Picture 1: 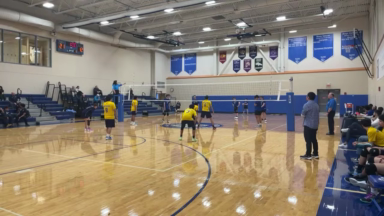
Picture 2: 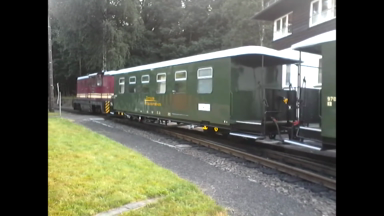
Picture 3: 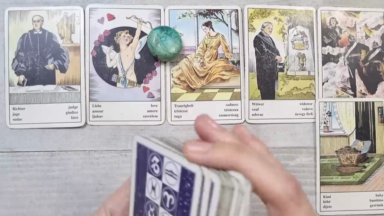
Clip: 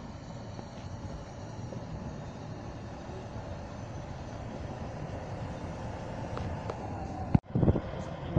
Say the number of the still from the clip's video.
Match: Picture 2